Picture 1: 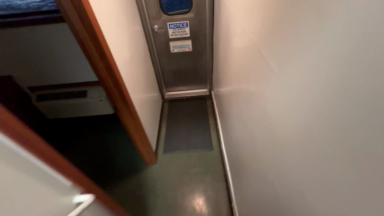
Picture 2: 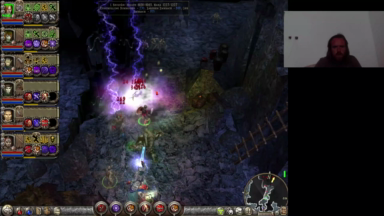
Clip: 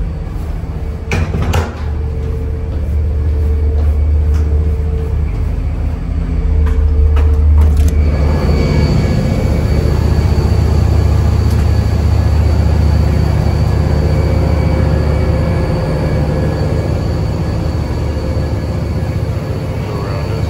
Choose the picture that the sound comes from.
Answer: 1